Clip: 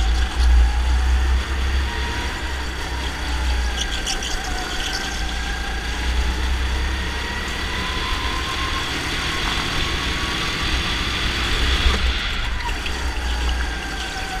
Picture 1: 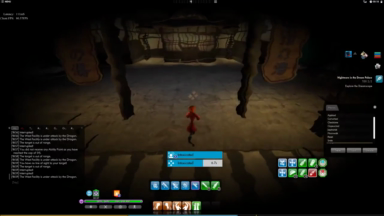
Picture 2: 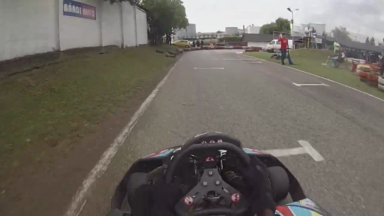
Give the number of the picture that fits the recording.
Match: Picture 2